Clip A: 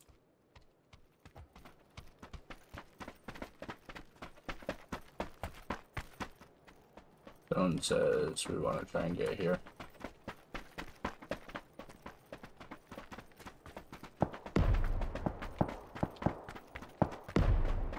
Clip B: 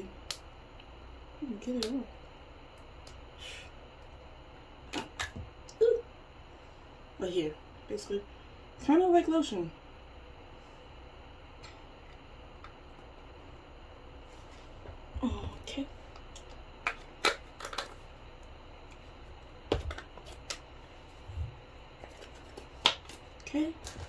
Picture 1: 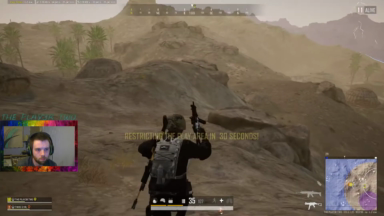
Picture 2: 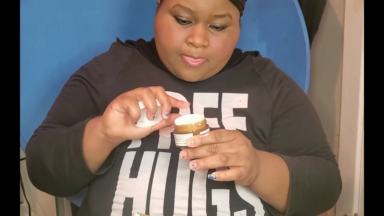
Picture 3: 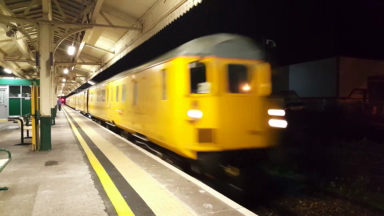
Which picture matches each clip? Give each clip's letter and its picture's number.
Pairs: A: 1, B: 2